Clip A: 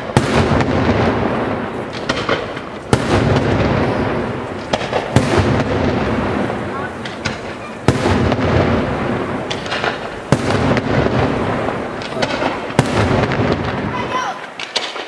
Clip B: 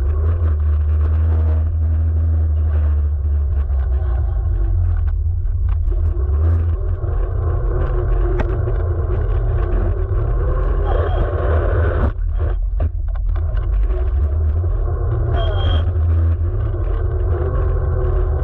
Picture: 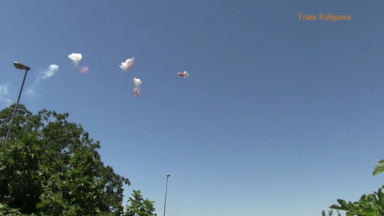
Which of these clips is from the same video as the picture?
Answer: A